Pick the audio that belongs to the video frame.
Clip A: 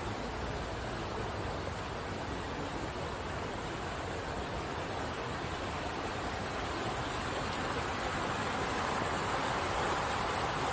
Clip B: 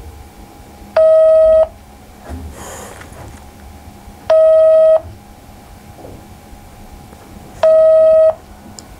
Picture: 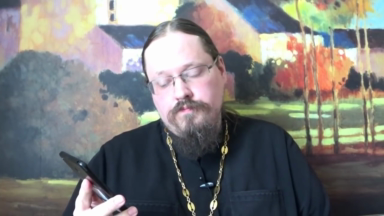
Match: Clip B